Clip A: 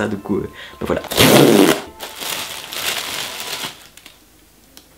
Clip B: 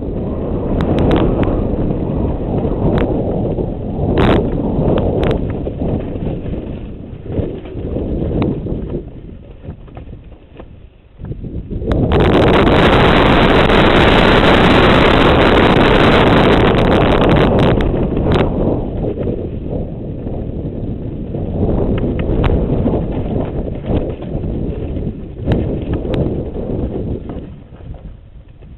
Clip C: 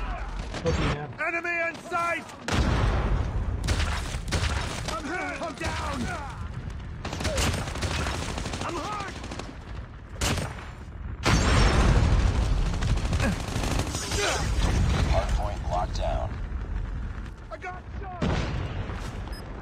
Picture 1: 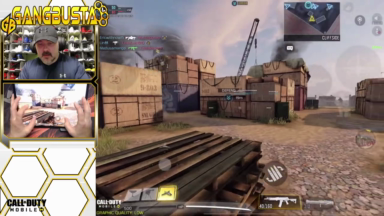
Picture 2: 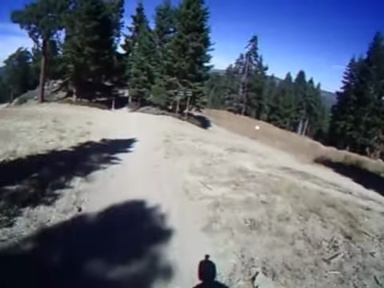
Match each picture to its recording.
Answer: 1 C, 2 B